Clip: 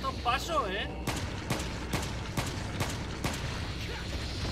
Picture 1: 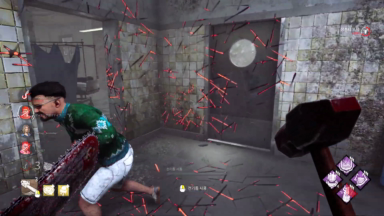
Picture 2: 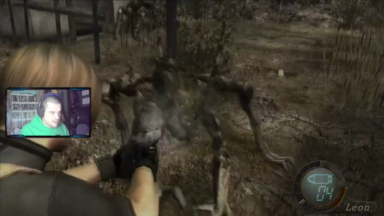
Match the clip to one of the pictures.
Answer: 2